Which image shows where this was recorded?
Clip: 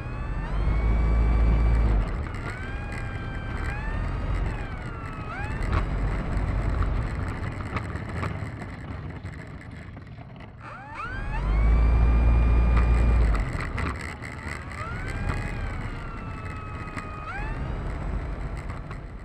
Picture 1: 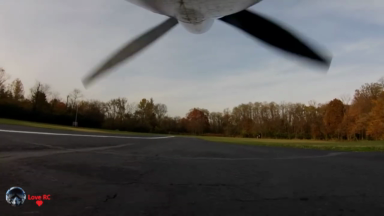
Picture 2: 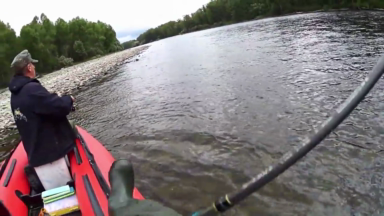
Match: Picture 1